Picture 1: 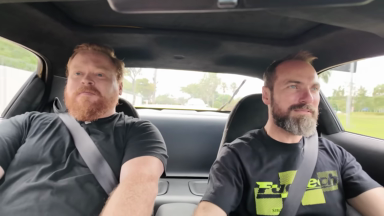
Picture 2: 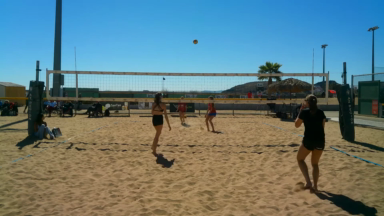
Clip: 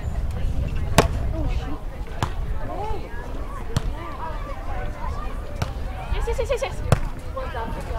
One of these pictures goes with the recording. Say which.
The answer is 2